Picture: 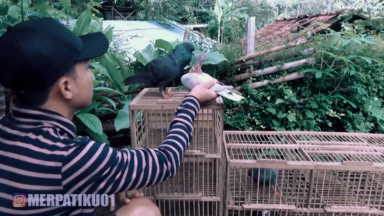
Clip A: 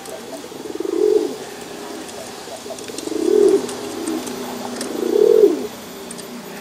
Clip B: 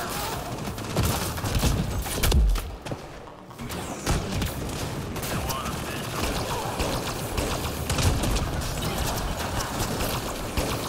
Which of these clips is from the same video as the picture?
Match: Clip A